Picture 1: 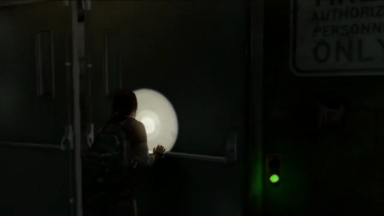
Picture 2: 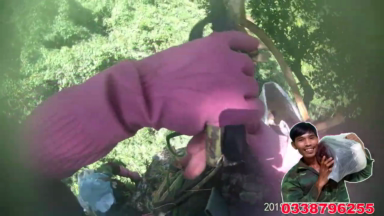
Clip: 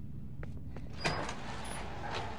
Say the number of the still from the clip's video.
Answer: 1